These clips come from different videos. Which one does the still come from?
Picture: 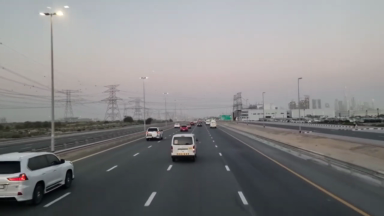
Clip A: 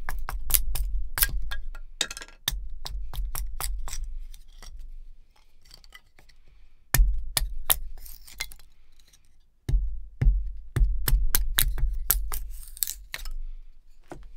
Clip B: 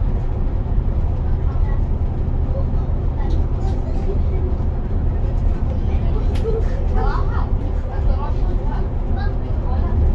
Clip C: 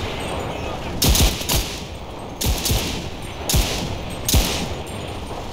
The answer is B